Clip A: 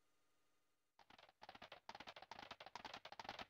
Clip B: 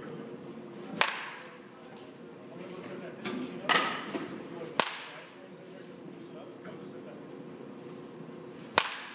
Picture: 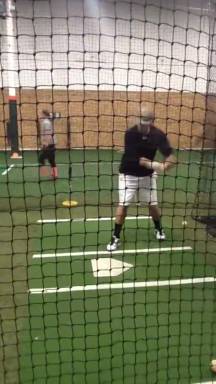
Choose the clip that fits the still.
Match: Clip B